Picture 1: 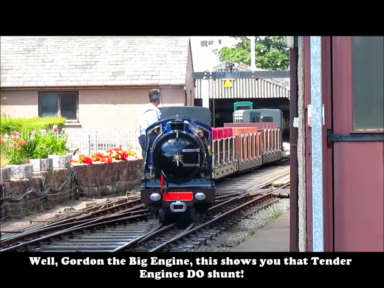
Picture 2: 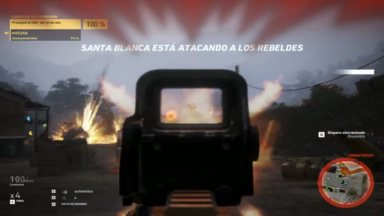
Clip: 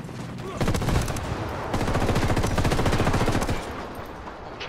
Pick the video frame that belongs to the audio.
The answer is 2